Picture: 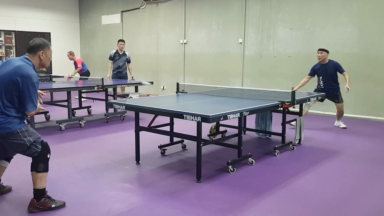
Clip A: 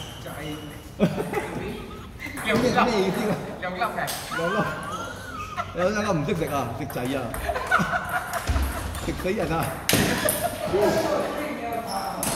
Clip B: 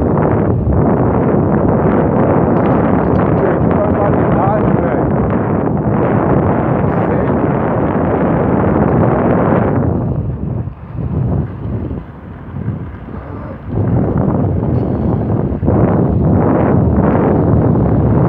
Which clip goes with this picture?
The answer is A